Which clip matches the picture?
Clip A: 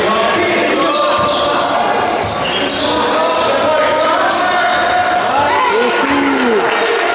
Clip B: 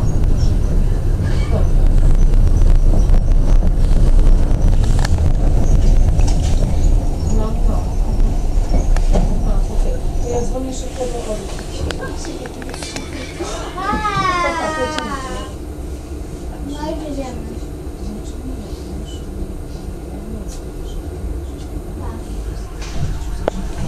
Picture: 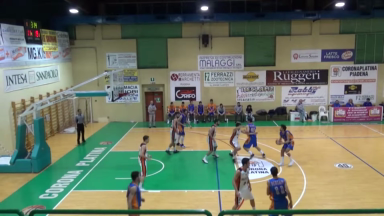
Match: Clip A